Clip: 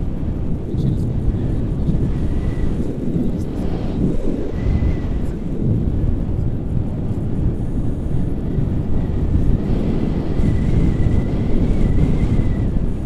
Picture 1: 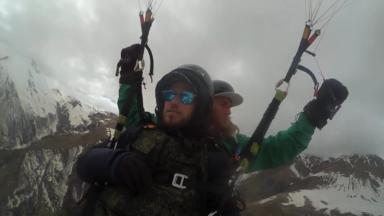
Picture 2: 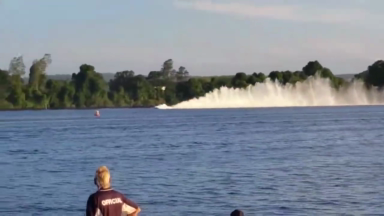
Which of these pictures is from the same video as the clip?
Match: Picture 1